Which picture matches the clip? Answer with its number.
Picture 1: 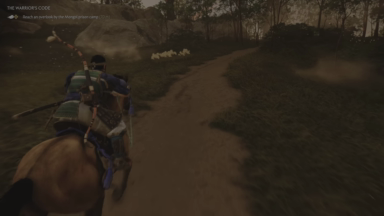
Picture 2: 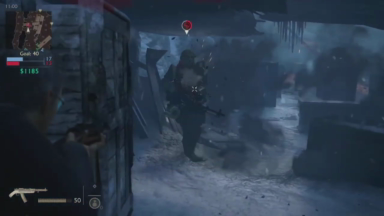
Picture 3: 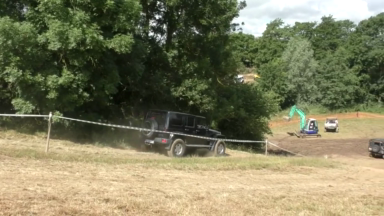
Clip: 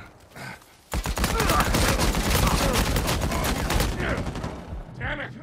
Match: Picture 2